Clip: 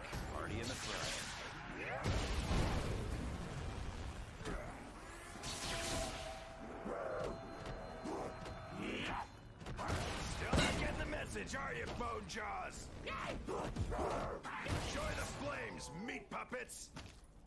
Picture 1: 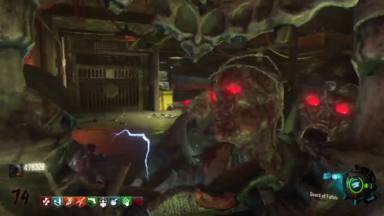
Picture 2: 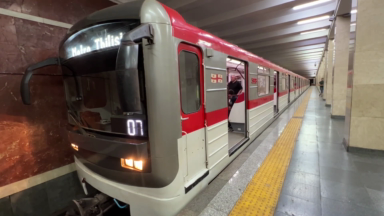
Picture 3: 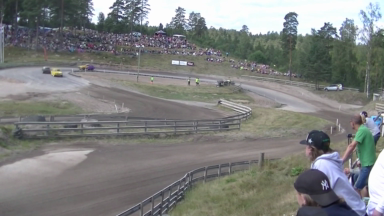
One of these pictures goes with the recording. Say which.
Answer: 1